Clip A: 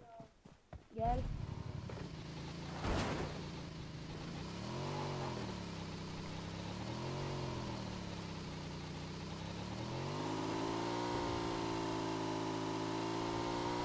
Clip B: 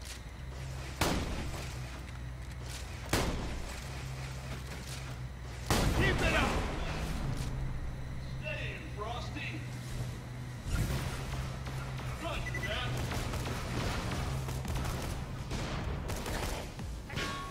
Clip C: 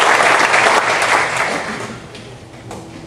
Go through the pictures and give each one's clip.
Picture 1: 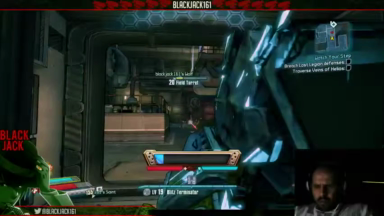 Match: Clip B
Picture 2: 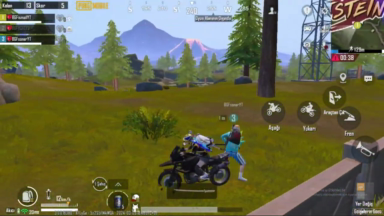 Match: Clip A